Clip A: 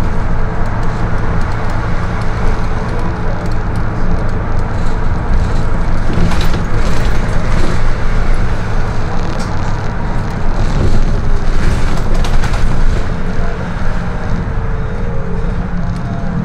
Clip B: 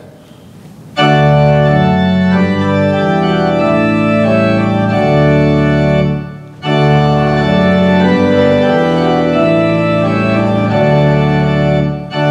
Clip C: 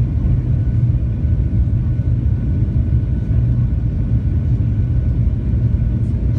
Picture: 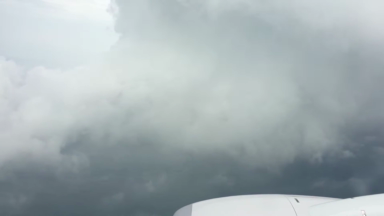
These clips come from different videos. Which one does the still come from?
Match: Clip C